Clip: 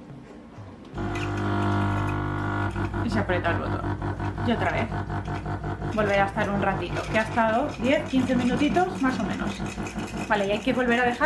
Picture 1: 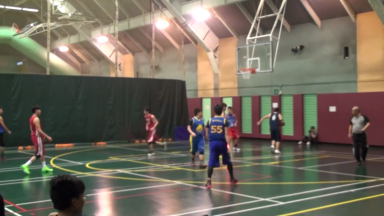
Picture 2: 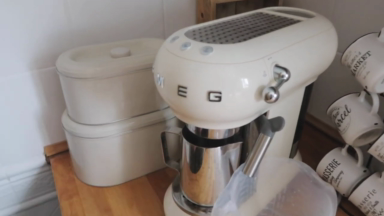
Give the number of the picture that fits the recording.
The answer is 2